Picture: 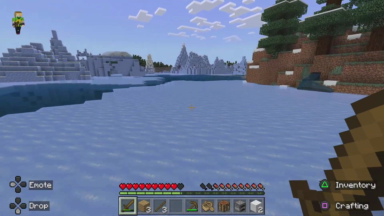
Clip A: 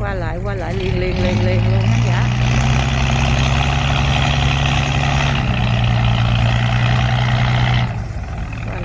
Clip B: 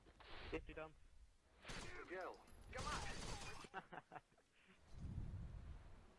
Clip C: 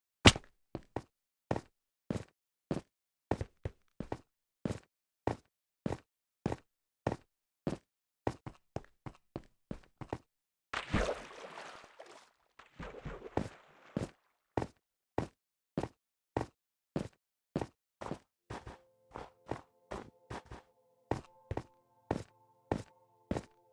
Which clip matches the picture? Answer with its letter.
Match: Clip C